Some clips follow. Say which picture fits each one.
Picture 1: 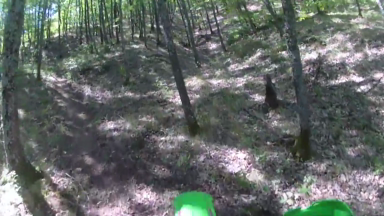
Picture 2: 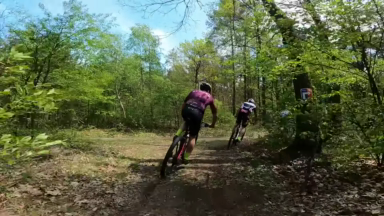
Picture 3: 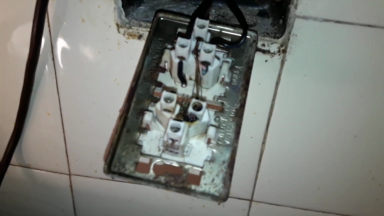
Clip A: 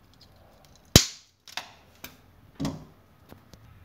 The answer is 3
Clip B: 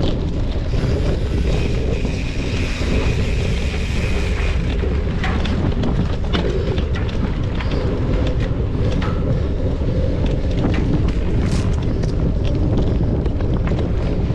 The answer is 2